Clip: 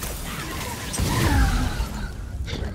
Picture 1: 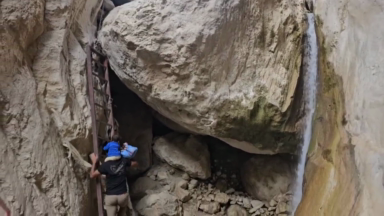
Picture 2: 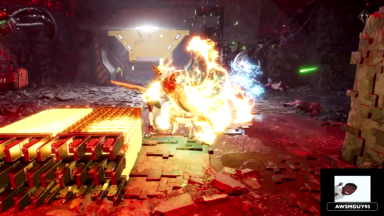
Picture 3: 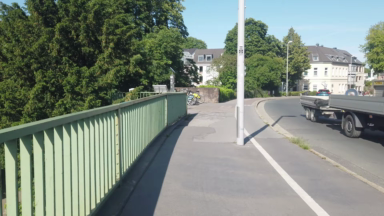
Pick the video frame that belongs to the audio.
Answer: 2